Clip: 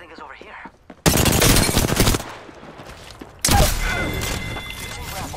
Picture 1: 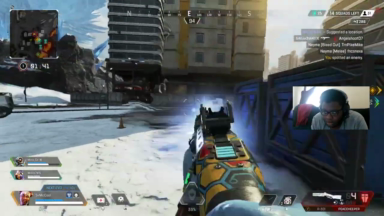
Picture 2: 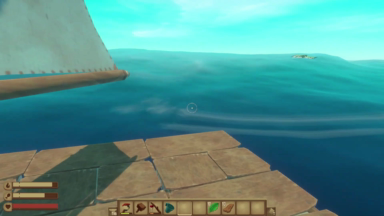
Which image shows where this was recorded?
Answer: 1